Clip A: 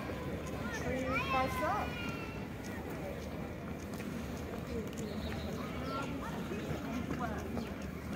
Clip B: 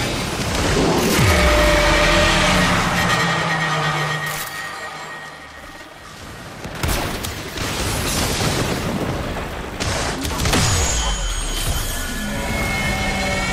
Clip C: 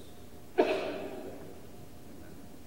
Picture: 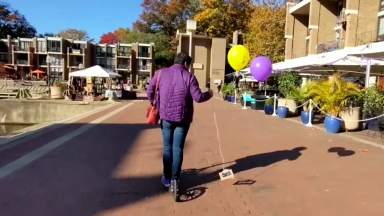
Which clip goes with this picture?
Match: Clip A